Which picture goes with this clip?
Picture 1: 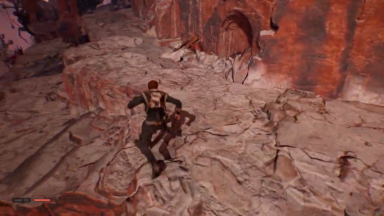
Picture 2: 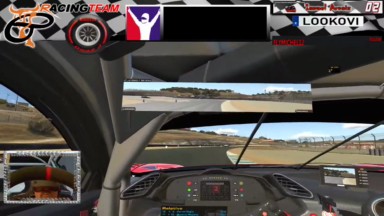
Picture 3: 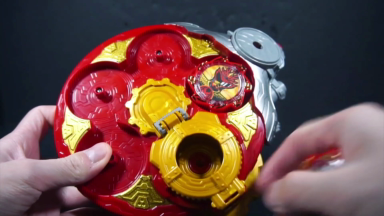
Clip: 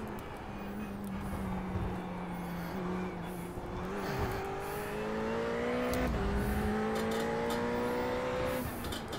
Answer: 2